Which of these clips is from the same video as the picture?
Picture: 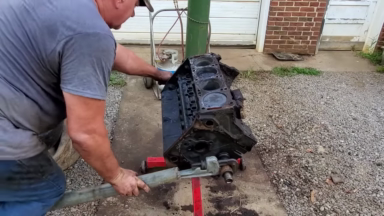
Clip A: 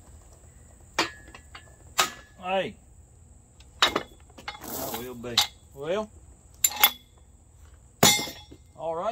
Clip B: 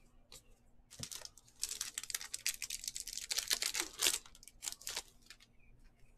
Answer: A